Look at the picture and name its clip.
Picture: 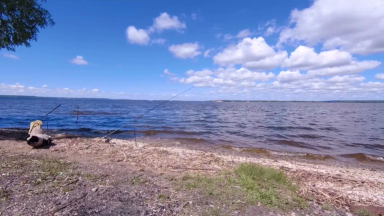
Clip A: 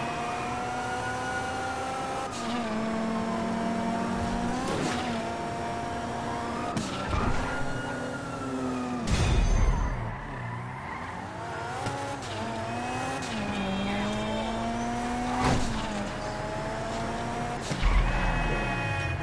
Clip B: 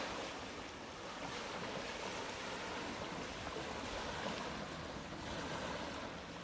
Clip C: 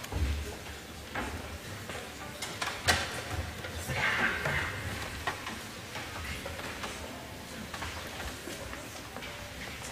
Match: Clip B